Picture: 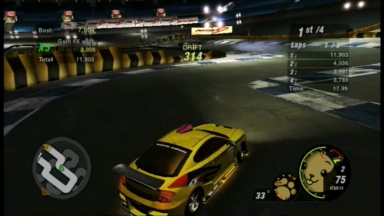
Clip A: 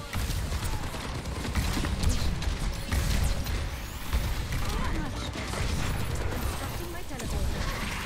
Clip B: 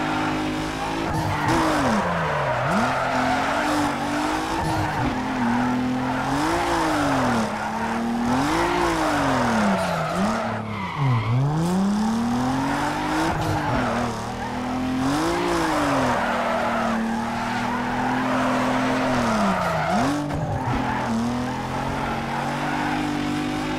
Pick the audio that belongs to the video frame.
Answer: B